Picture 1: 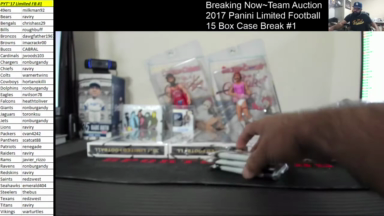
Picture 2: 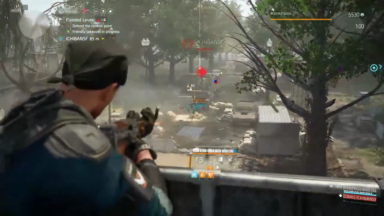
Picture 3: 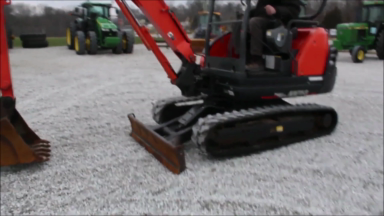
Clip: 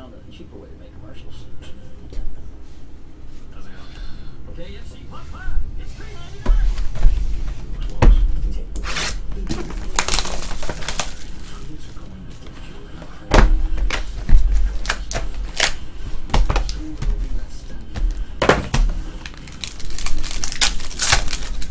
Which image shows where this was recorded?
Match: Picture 1